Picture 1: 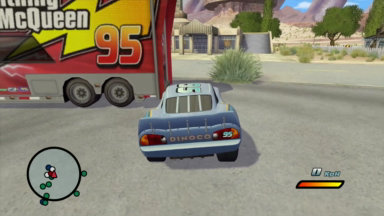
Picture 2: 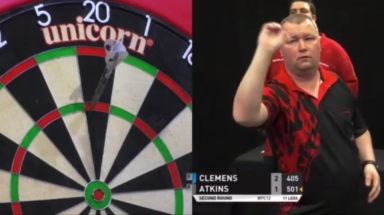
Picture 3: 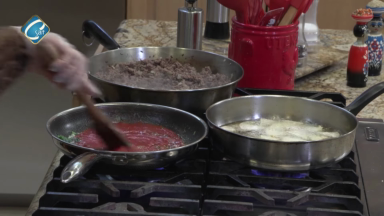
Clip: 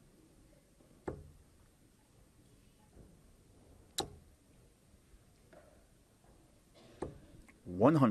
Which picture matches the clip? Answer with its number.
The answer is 2